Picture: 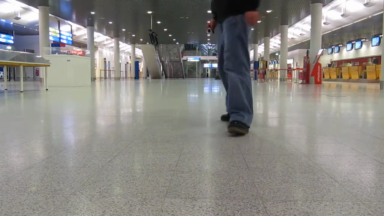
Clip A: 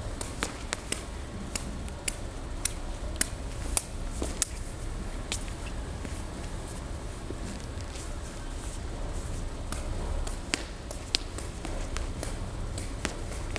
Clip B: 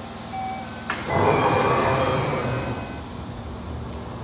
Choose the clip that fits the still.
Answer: A